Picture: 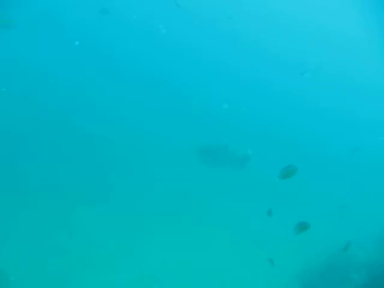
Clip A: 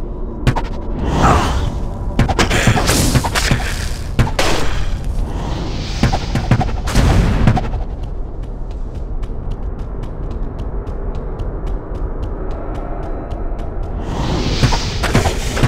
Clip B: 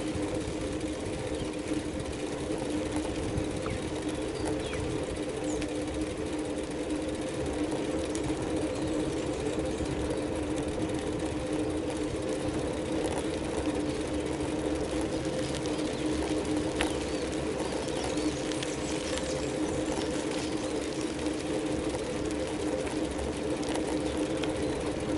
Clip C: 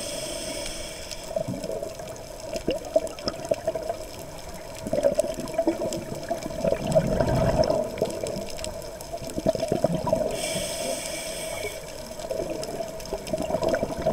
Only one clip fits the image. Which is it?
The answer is C